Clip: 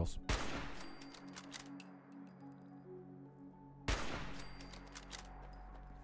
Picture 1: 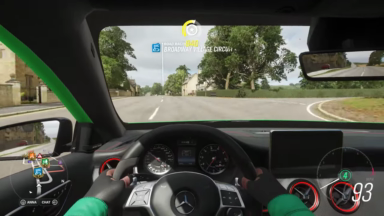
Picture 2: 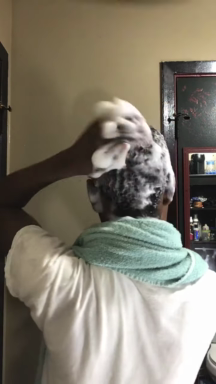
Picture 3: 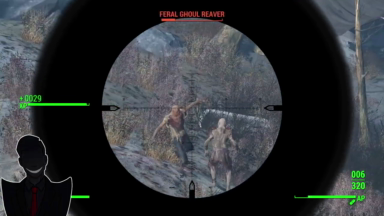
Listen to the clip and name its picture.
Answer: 3